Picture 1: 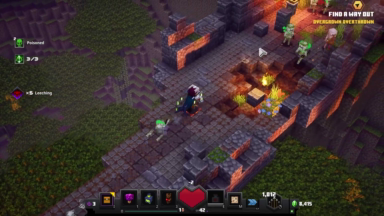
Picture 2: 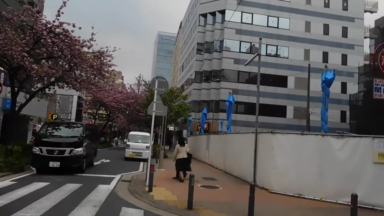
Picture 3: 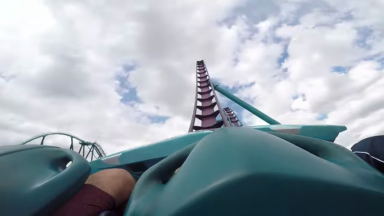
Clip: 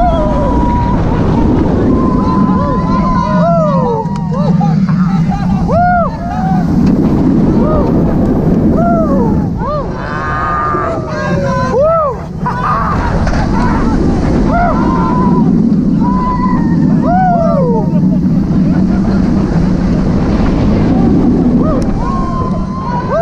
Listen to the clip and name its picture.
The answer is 3